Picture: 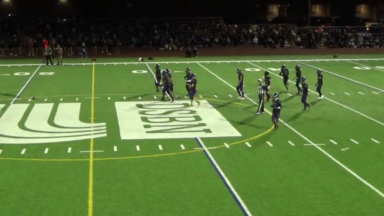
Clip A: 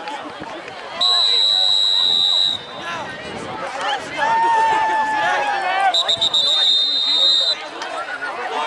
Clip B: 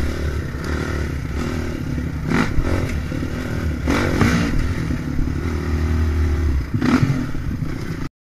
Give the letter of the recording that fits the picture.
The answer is A